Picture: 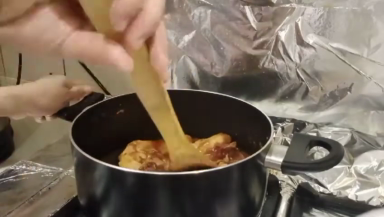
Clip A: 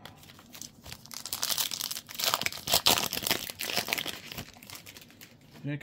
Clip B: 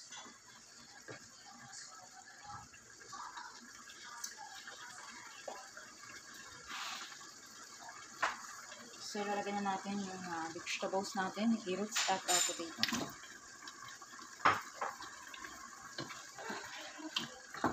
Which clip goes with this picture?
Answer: B